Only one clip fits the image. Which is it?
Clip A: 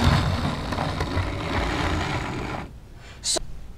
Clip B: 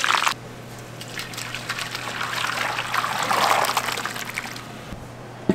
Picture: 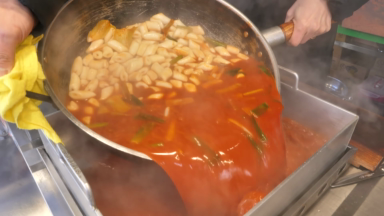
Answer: B